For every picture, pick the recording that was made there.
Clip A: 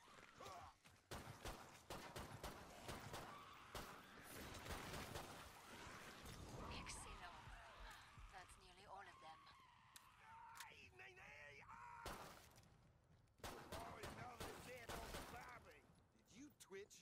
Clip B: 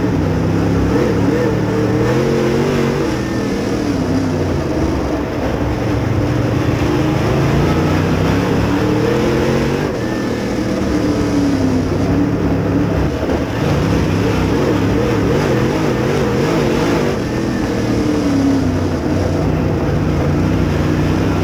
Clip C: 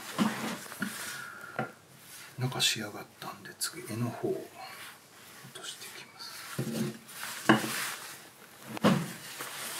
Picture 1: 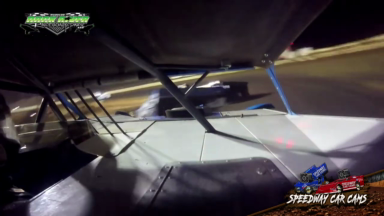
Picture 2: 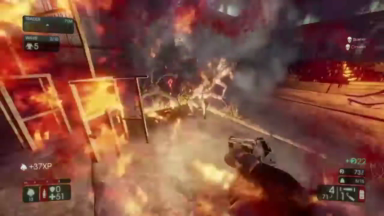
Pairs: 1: B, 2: A